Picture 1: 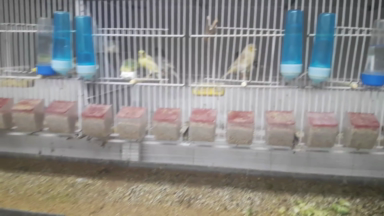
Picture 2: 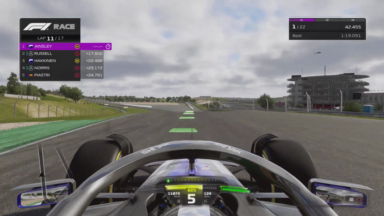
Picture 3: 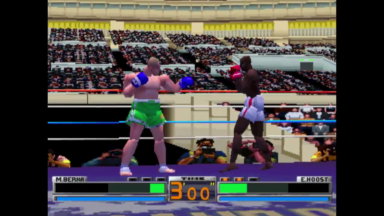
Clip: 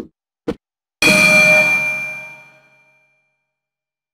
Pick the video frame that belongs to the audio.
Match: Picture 3